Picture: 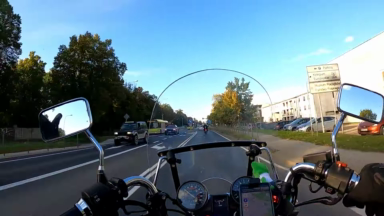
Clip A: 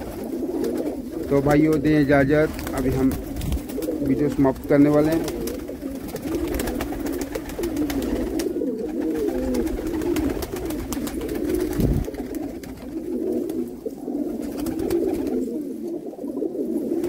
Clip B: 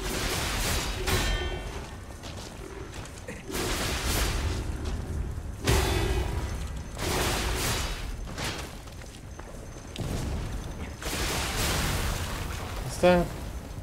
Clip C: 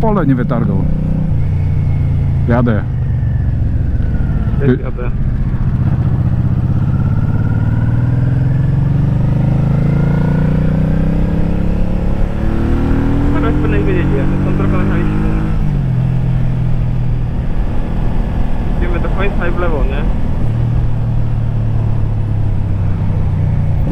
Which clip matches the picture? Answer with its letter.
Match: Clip C